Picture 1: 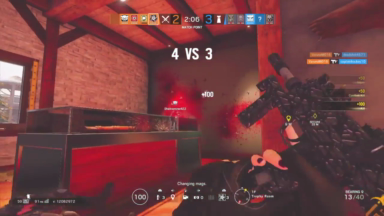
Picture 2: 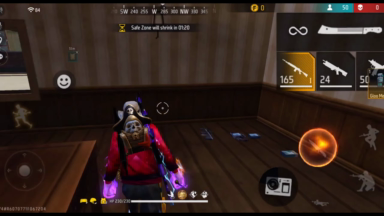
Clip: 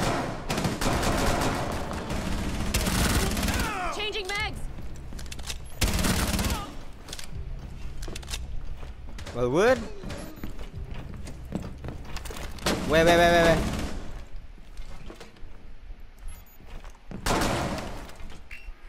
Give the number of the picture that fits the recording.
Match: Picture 1